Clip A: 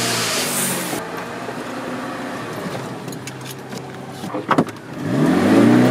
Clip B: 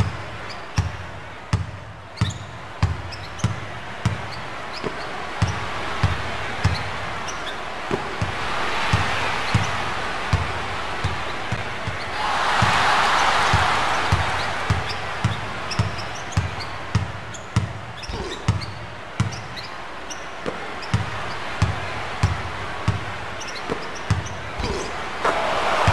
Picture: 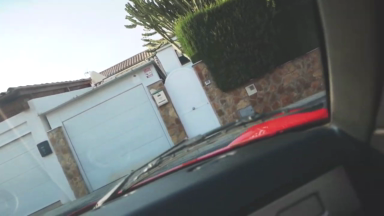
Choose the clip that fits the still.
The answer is A